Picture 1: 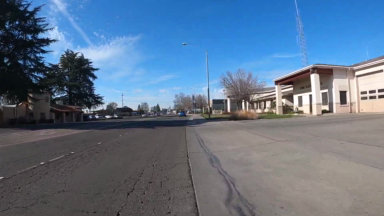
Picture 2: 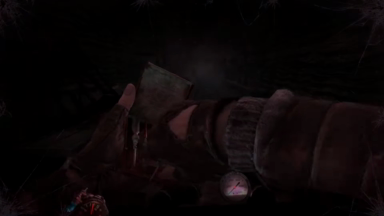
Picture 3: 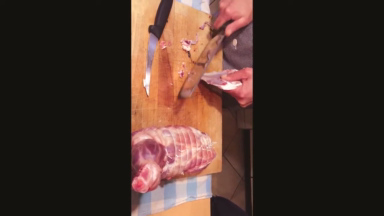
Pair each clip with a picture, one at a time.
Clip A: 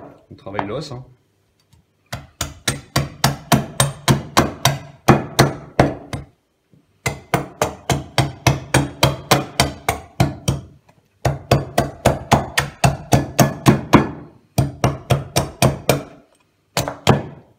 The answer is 3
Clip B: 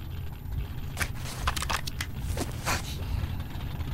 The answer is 2